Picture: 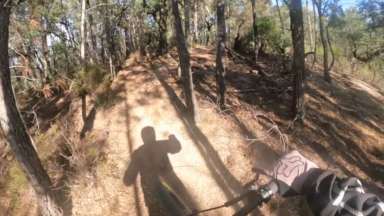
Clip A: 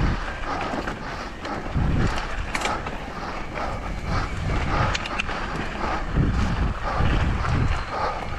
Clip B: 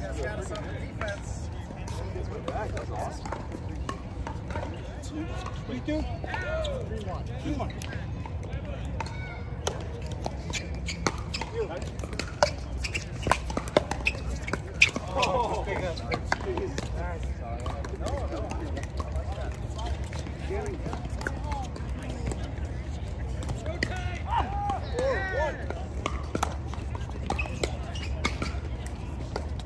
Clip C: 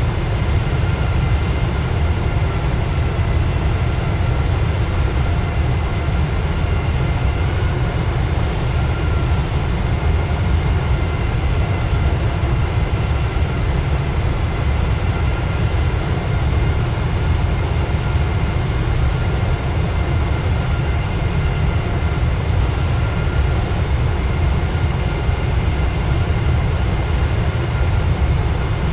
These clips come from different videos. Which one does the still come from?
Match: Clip A